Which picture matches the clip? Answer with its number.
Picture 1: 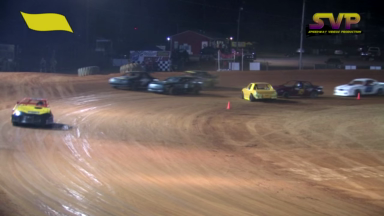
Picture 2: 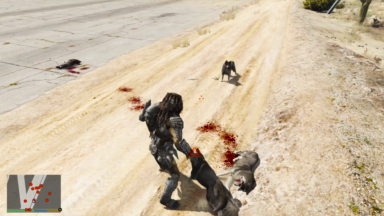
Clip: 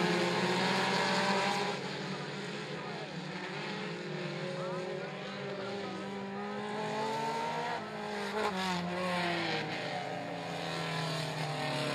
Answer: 1